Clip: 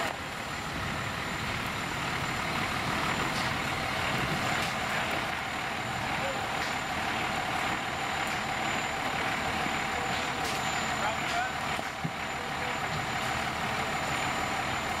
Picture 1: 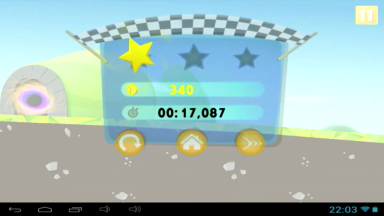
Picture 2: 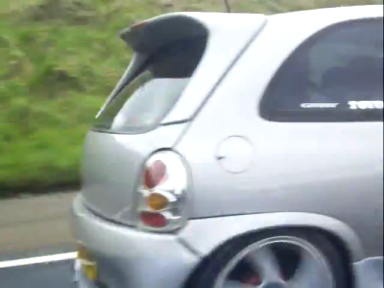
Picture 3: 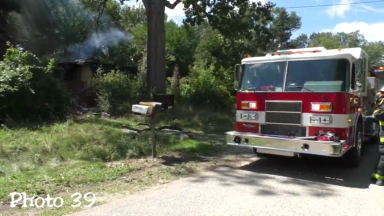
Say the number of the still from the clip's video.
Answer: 3